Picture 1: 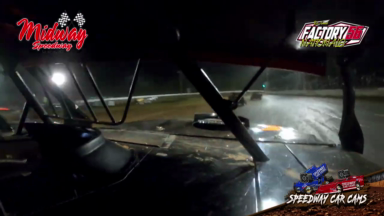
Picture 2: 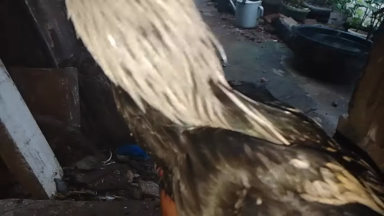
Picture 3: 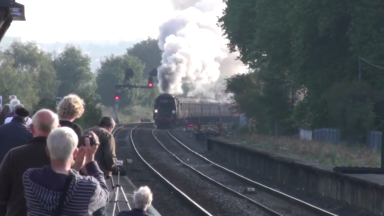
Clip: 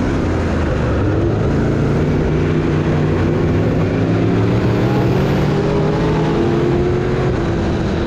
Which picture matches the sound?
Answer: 1